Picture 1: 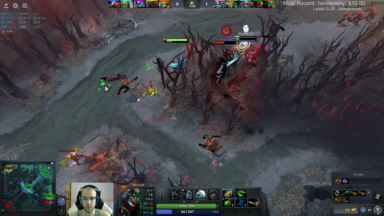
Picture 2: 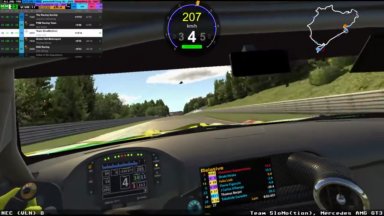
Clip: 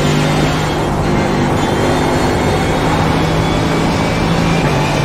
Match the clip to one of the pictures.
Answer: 2